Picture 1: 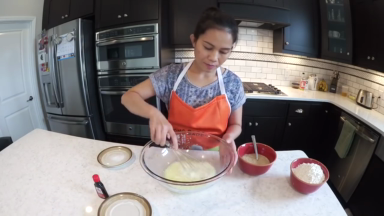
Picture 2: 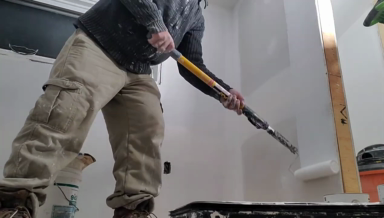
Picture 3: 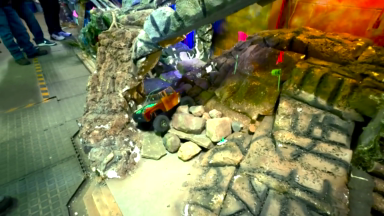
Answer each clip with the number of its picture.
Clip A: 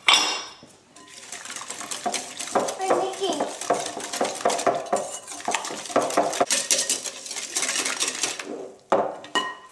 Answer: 1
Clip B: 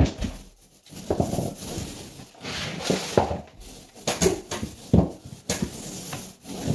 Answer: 2